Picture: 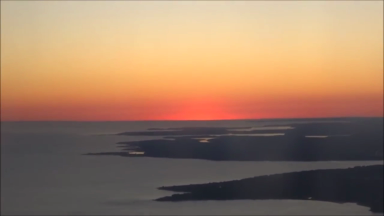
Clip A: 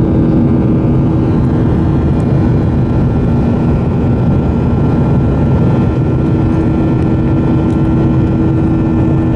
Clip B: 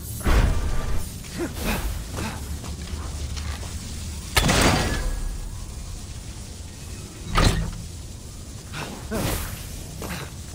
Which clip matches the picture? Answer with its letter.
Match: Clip A